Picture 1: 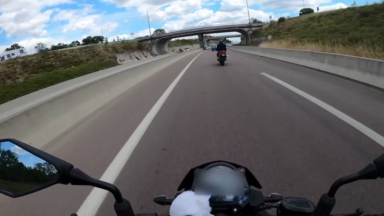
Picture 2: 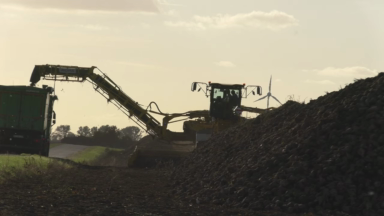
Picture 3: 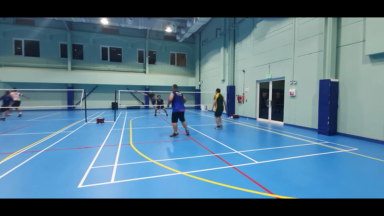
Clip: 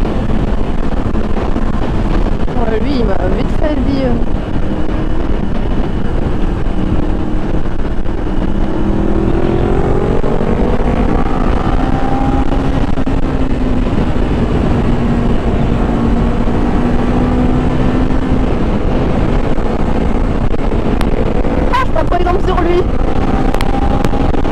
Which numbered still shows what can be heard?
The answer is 1